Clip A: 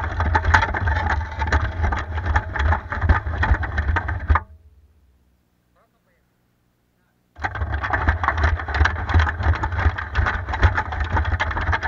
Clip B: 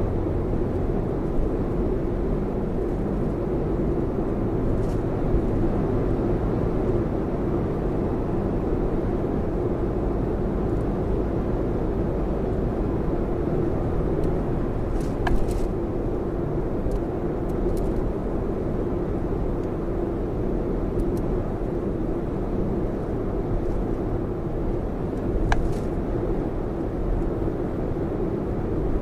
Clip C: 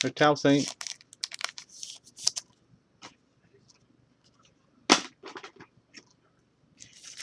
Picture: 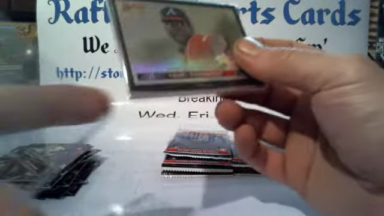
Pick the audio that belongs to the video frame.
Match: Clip C